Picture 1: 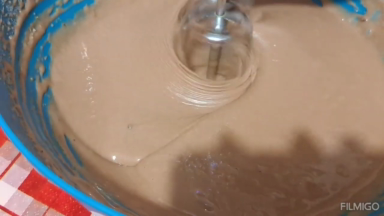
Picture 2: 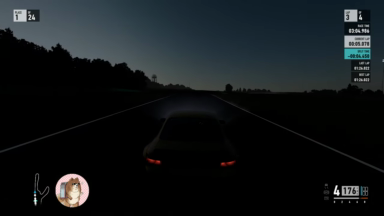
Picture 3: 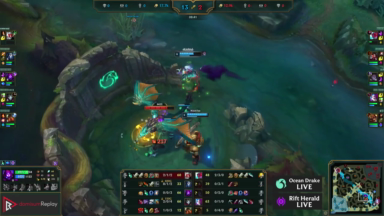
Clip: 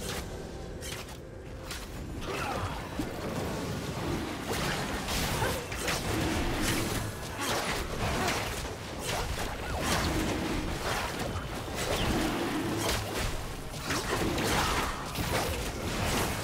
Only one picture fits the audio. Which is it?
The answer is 3